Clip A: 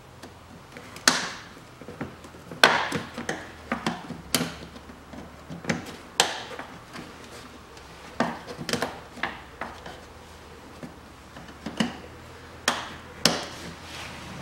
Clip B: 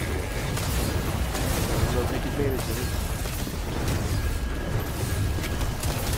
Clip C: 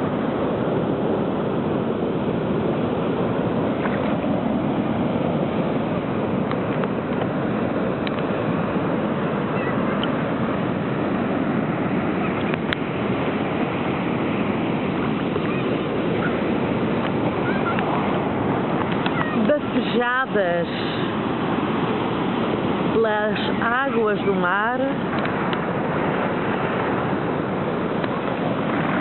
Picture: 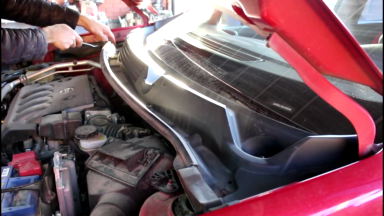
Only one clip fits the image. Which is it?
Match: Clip A